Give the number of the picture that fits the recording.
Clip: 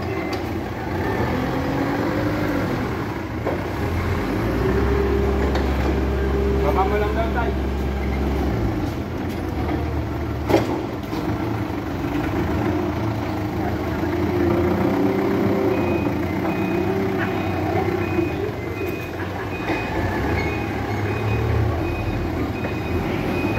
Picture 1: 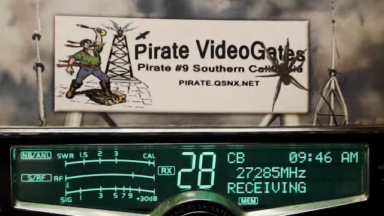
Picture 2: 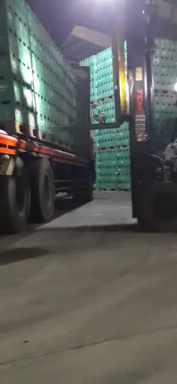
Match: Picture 2